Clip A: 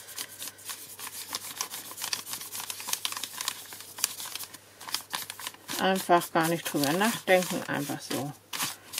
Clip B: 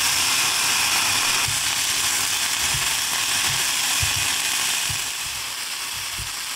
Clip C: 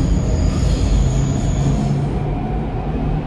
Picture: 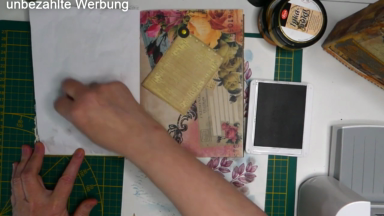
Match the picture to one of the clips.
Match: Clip A